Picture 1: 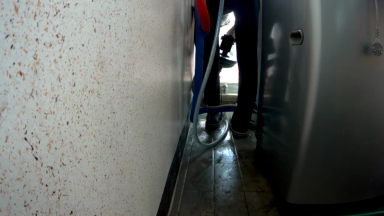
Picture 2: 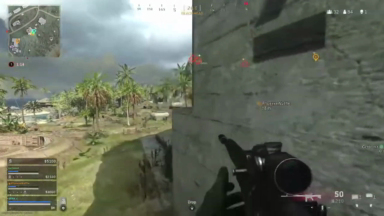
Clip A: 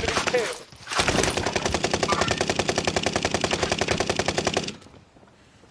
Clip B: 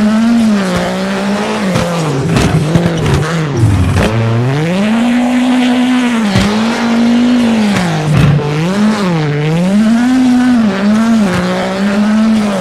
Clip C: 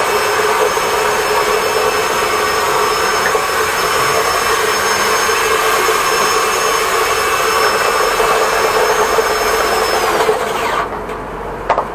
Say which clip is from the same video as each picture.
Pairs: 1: C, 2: A